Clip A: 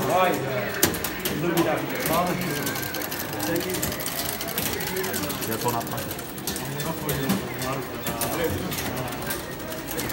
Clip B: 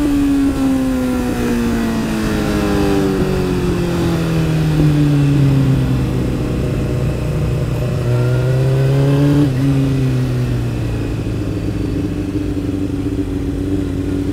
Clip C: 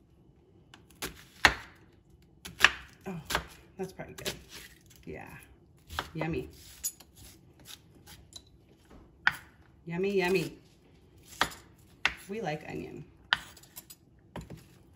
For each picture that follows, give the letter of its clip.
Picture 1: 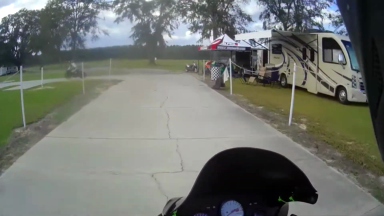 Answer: B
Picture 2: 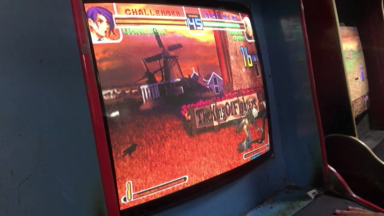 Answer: A